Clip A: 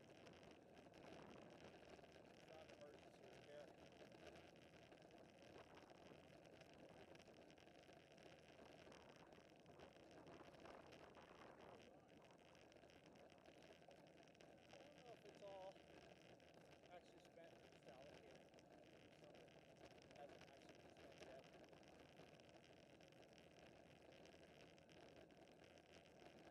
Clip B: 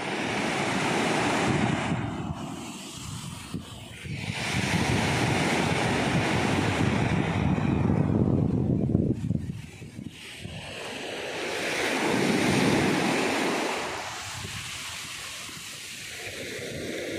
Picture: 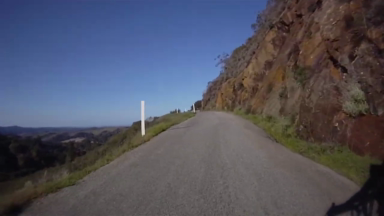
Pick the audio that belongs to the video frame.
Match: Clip A